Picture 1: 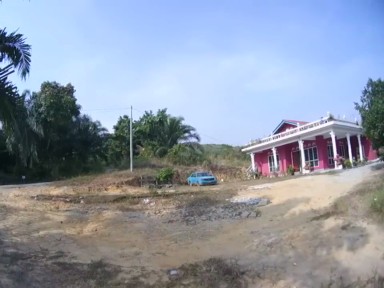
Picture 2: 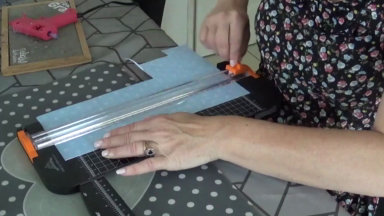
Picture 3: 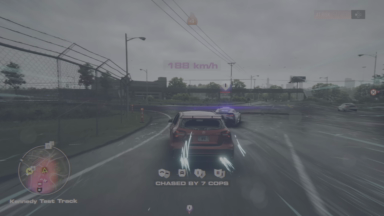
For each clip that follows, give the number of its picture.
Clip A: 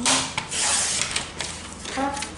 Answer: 2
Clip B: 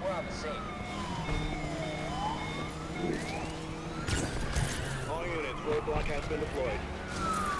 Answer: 3